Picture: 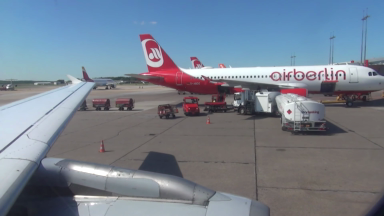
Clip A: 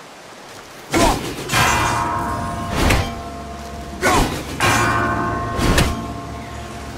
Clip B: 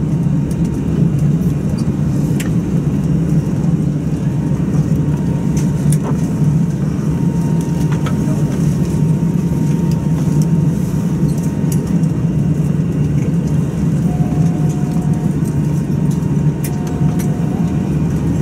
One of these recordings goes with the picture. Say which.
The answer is B